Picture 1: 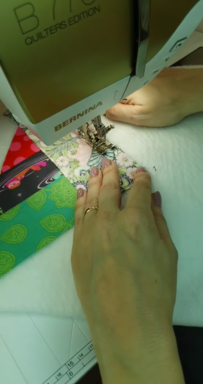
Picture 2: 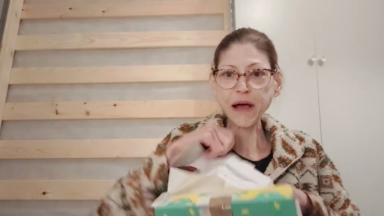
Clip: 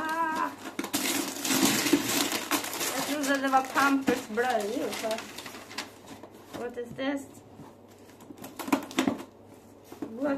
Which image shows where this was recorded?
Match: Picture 2